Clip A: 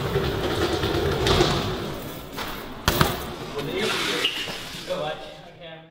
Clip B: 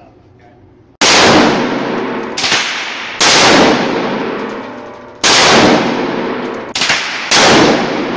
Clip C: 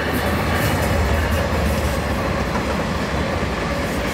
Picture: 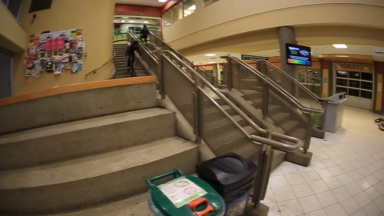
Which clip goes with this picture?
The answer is A